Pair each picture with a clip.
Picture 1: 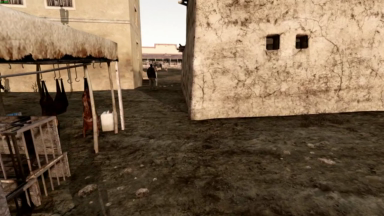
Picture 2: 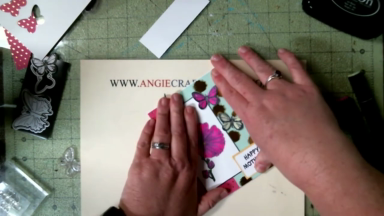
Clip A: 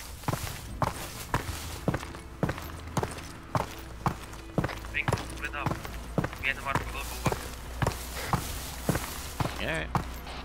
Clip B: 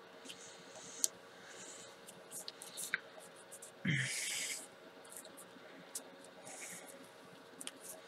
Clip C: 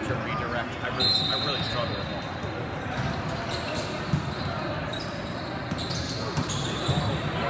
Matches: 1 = A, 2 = B